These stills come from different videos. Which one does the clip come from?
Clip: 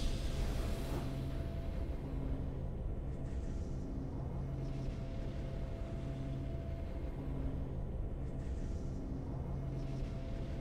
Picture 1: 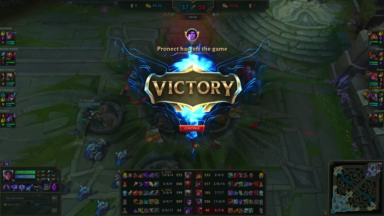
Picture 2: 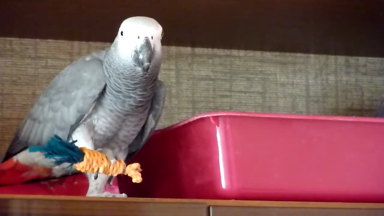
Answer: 1